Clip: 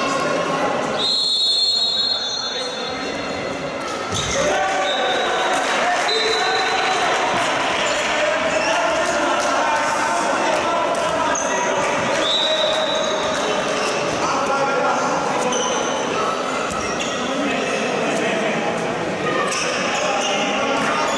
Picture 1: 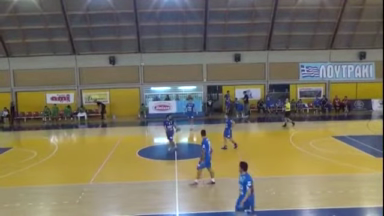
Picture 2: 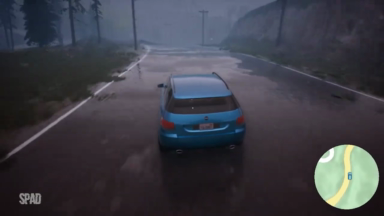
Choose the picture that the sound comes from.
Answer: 1